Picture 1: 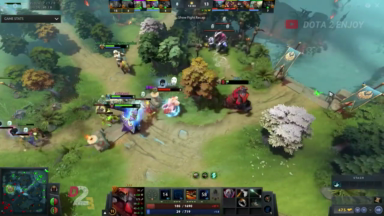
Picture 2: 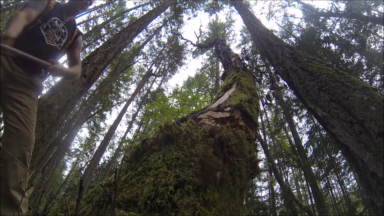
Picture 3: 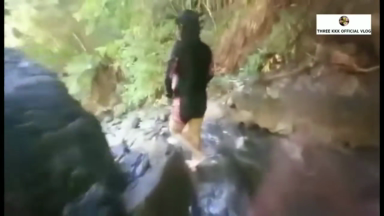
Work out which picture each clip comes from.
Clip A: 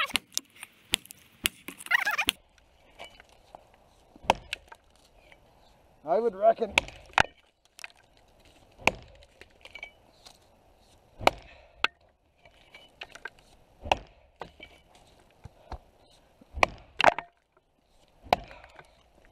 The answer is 2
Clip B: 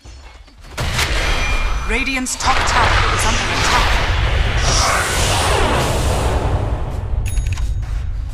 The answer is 1